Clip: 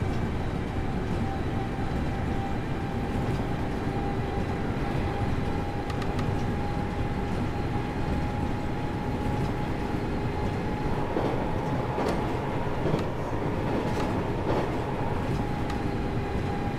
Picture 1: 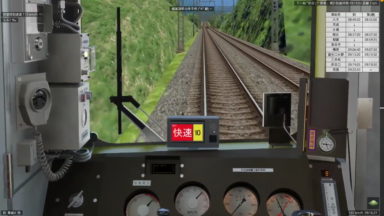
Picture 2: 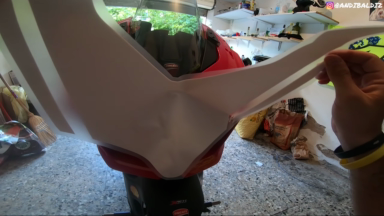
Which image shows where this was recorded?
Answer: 1